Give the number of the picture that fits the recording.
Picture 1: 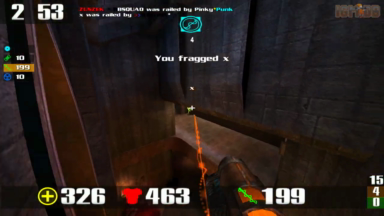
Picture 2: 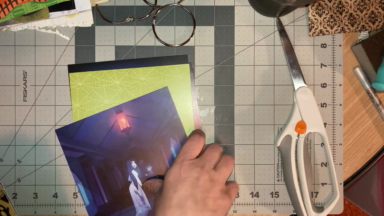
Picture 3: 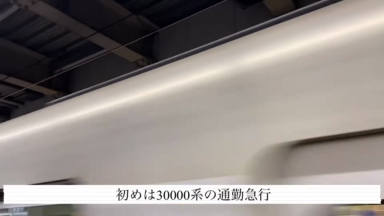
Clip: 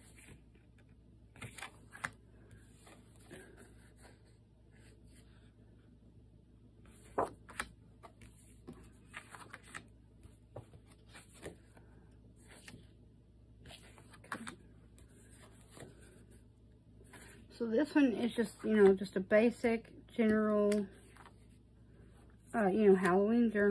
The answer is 2